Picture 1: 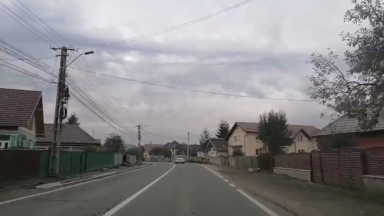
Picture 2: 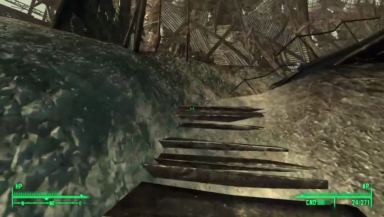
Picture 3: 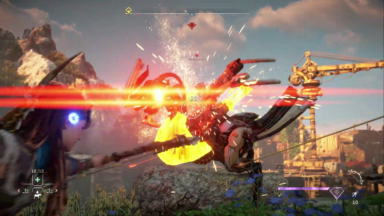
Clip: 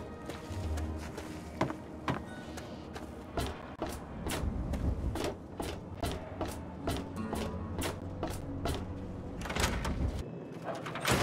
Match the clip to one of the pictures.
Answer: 2